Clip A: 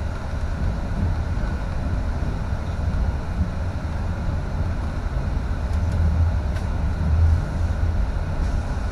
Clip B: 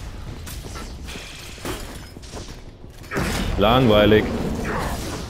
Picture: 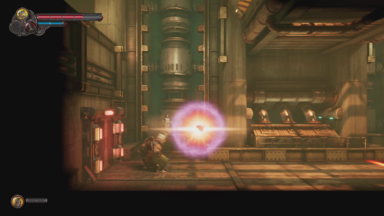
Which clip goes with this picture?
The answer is B